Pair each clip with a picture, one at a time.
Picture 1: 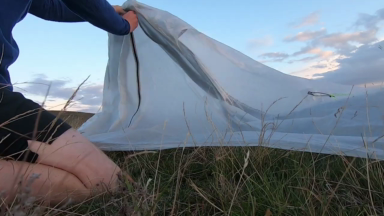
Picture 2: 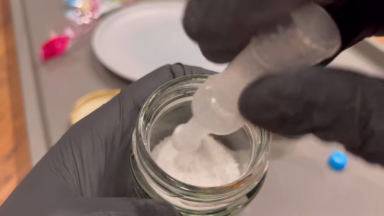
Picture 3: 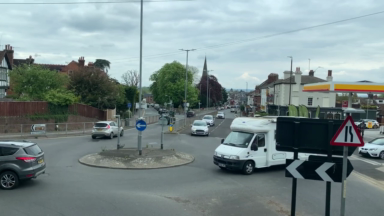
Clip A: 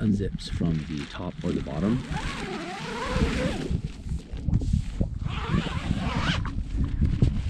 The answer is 1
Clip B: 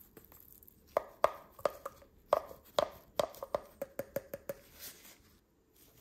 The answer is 2